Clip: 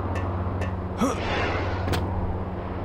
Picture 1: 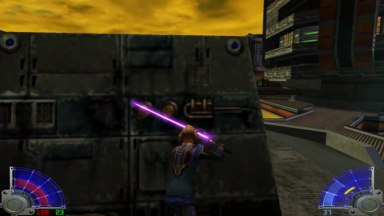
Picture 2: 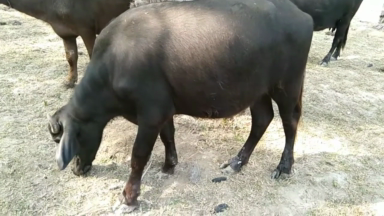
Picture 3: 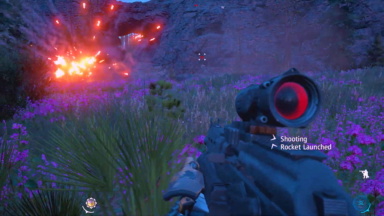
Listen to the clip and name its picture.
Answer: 1